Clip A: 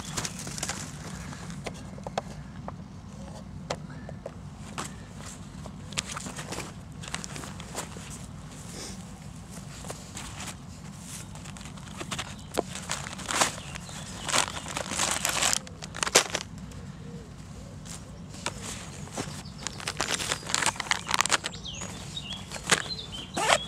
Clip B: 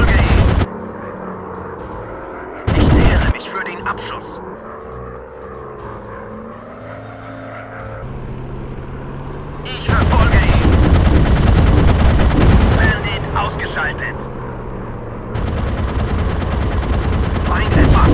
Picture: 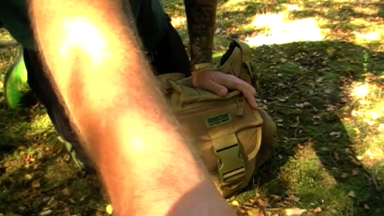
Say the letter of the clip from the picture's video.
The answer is A